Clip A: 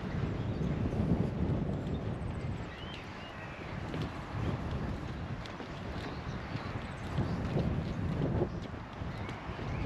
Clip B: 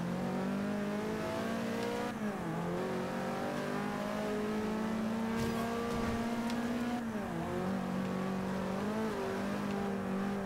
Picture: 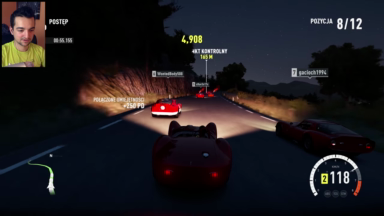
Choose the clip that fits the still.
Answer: B